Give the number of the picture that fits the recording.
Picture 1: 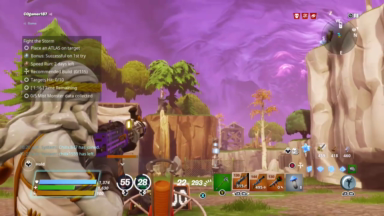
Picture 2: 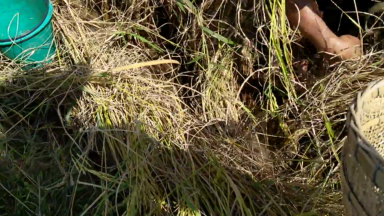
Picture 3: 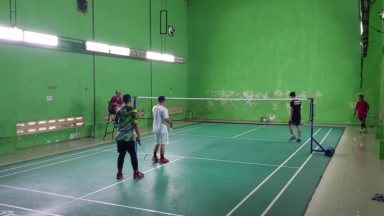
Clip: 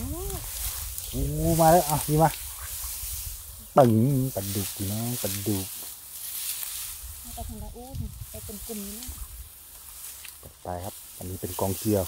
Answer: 2